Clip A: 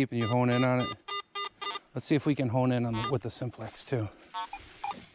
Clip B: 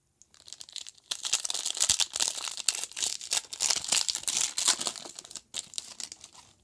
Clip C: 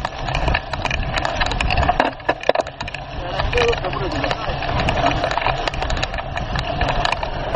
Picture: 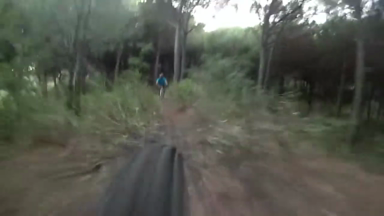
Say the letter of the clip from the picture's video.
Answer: C